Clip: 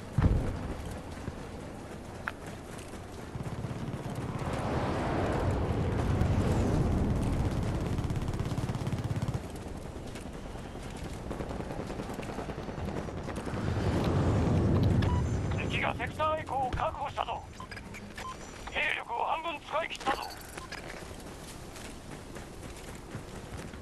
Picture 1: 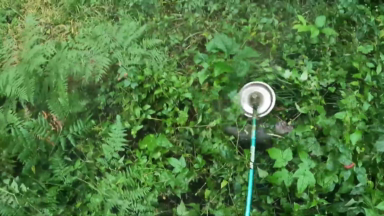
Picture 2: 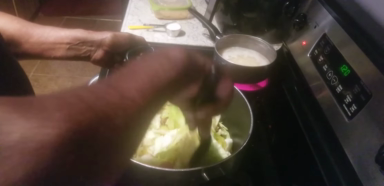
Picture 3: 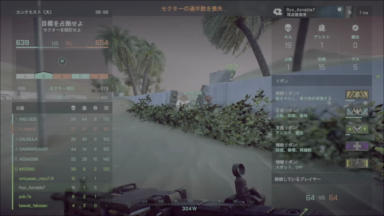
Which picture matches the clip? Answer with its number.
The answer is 3